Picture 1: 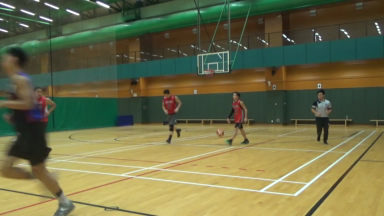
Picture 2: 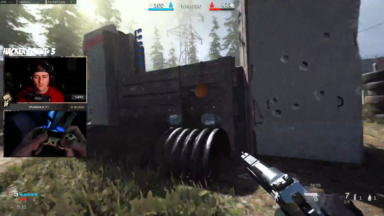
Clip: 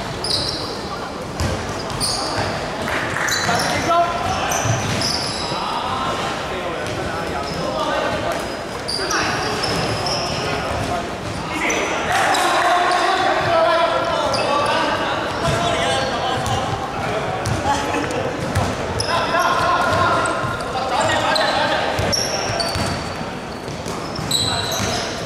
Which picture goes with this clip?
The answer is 1